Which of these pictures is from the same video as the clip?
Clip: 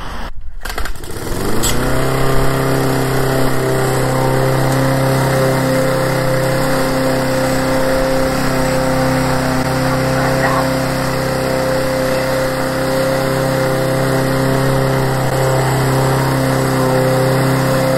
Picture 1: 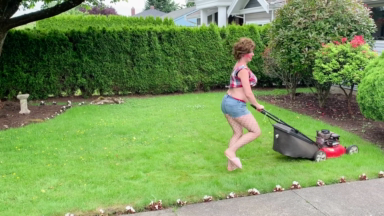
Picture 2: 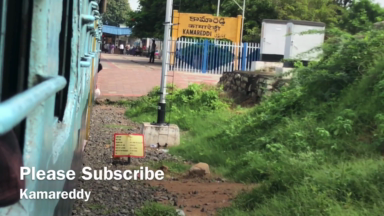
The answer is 1